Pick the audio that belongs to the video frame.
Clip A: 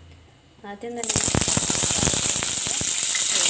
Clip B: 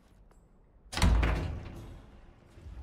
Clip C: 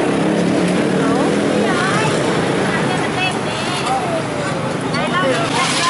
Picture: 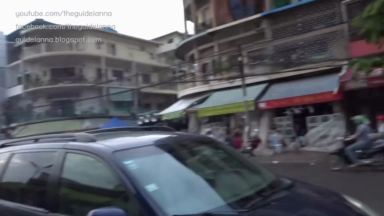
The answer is C